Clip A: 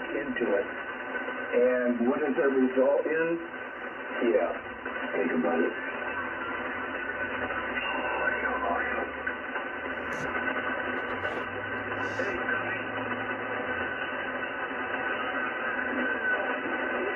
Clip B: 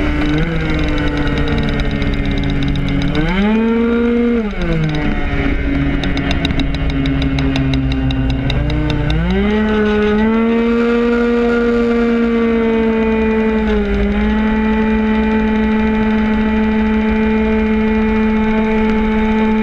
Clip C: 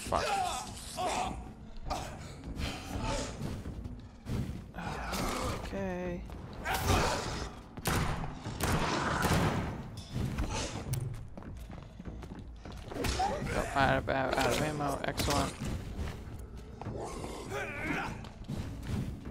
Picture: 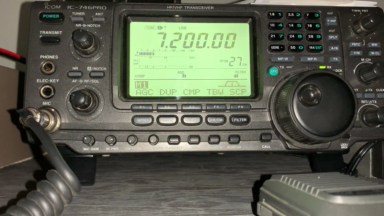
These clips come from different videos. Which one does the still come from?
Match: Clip A